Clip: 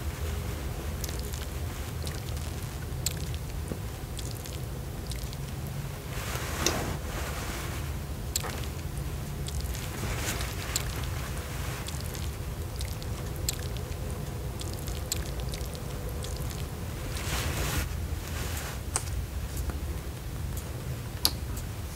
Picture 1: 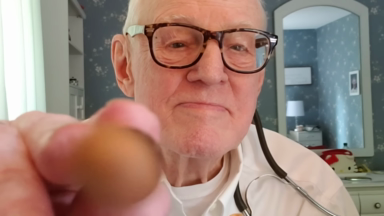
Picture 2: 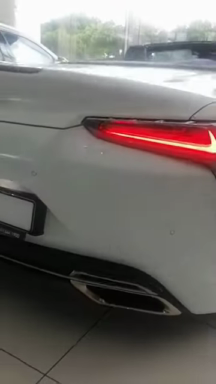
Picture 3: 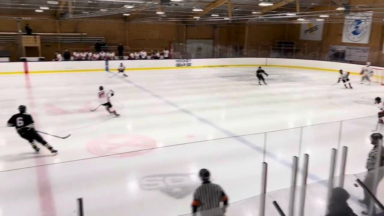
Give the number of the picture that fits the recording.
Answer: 1